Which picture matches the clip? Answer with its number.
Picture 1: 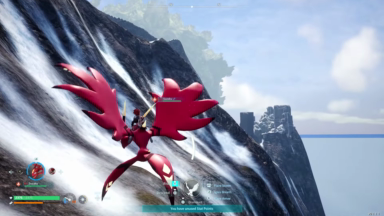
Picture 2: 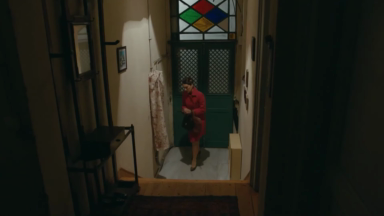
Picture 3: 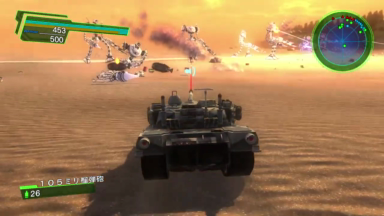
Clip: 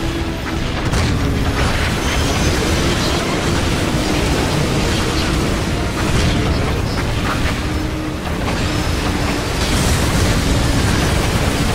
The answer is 3